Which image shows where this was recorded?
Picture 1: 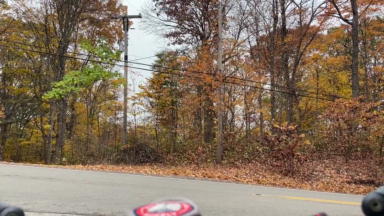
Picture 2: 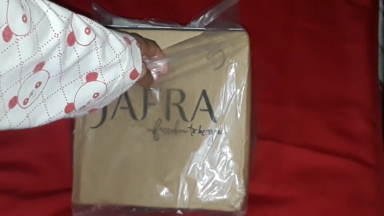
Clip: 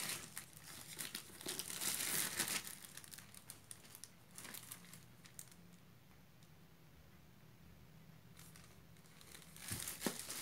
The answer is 2